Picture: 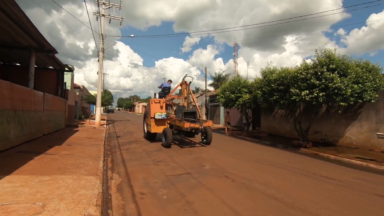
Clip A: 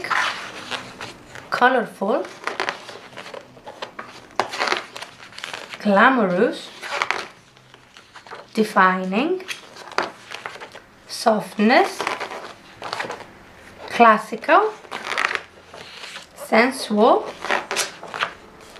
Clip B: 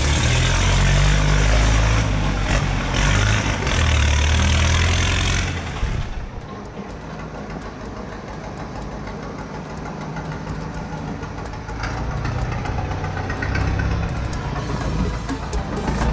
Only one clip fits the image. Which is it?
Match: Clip B